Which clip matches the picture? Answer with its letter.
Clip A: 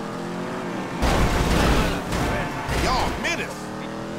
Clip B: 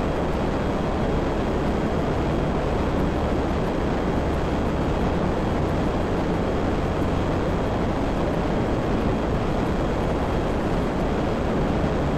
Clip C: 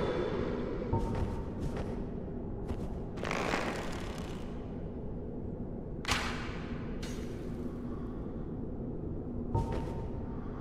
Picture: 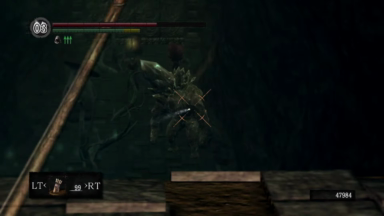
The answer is C